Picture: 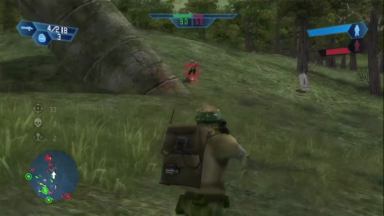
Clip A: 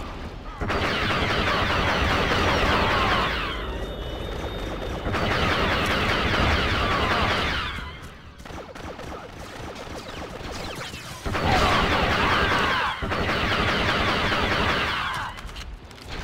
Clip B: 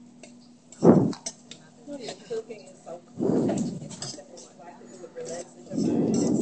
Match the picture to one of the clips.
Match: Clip A